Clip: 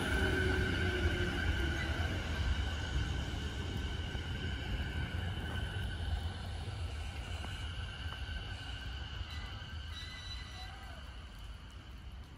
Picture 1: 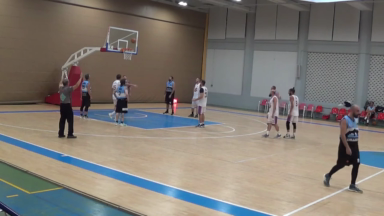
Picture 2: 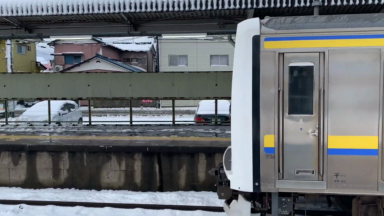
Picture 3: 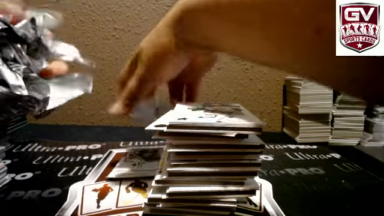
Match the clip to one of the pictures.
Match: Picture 2